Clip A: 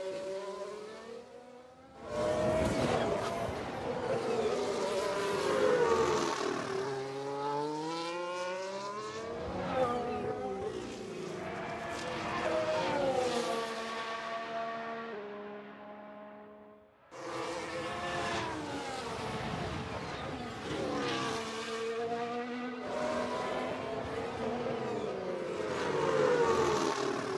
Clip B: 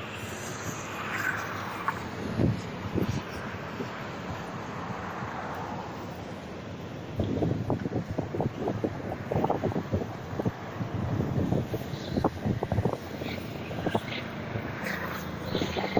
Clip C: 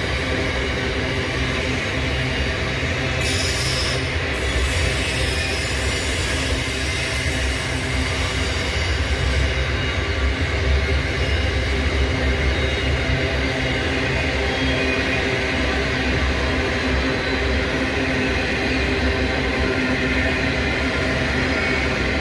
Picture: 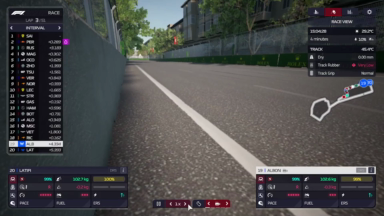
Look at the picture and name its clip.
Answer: A